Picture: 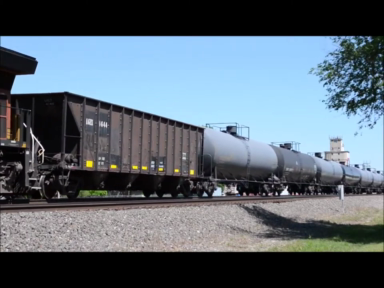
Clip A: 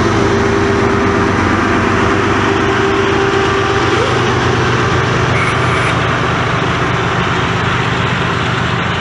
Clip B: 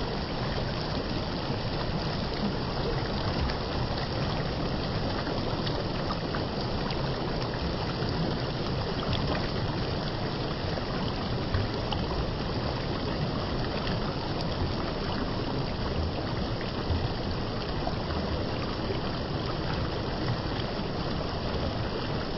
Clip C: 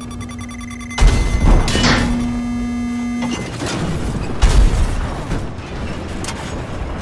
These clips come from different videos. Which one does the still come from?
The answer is A